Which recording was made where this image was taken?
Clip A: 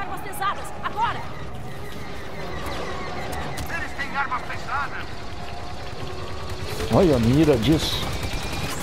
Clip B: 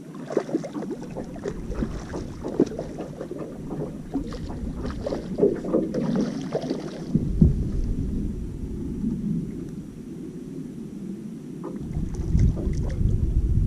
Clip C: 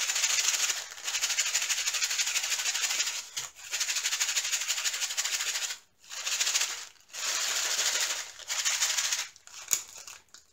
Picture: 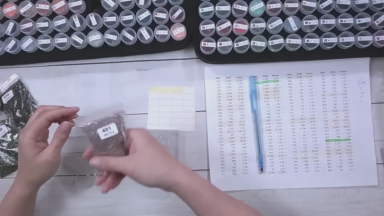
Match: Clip C